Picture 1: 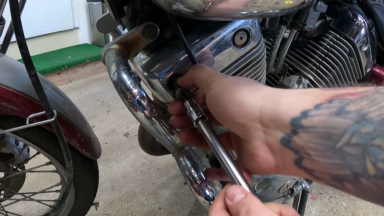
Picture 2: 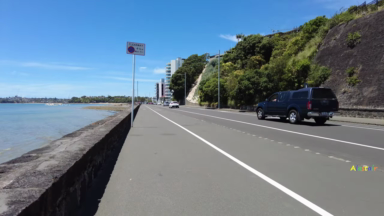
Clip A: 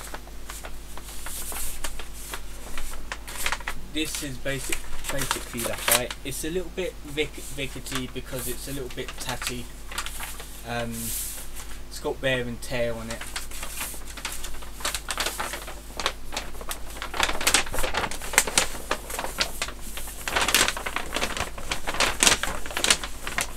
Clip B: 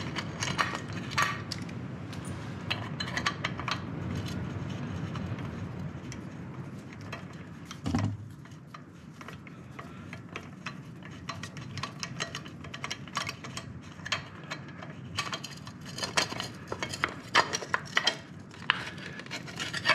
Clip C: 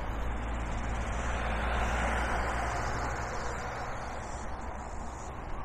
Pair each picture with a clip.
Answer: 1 B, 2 C